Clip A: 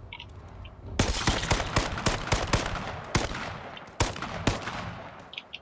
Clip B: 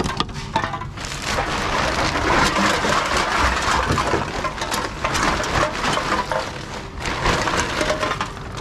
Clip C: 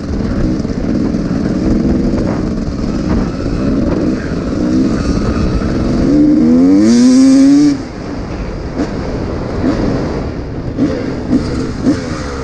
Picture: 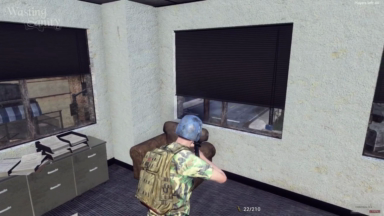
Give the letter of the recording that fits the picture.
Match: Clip A